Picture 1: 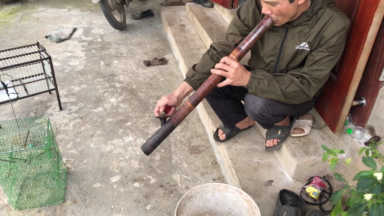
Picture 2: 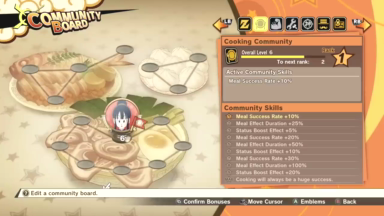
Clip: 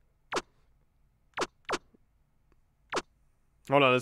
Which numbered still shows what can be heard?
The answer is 2